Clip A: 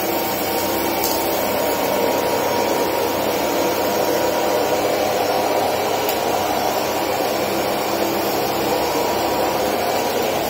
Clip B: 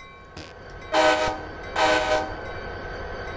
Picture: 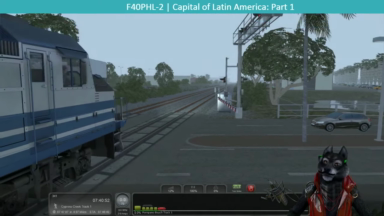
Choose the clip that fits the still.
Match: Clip B